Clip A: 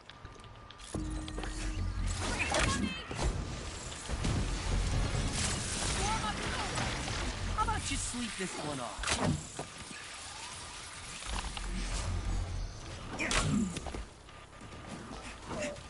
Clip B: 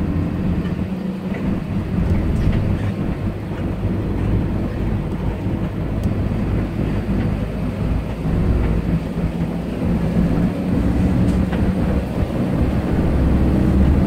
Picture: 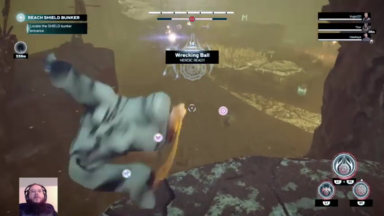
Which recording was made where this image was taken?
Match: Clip A